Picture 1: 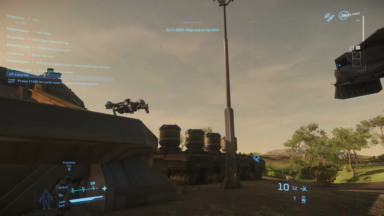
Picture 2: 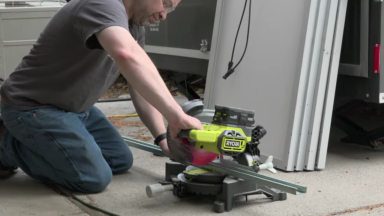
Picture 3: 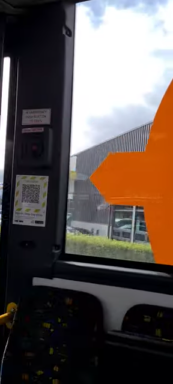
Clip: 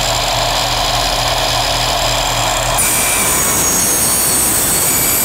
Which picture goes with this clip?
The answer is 2